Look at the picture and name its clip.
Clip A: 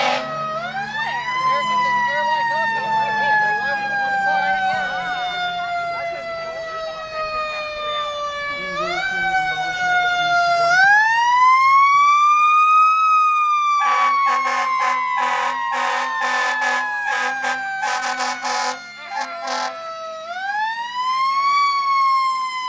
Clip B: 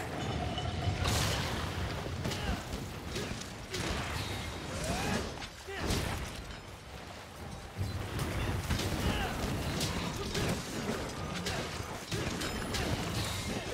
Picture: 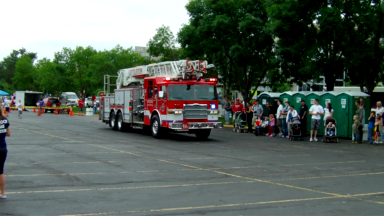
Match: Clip A